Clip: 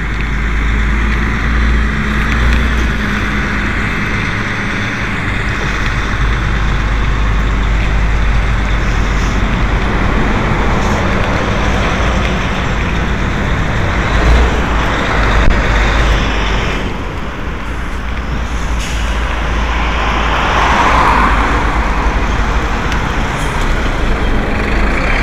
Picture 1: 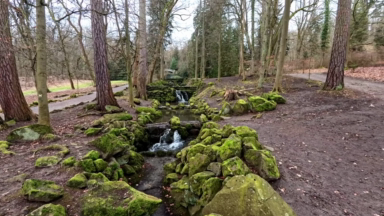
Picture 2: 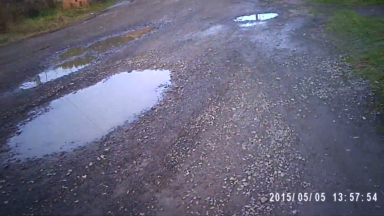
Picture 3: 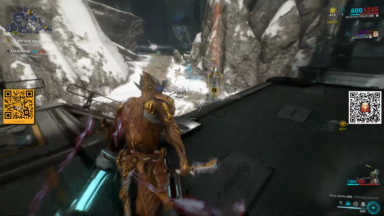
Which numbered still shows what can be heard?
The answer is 2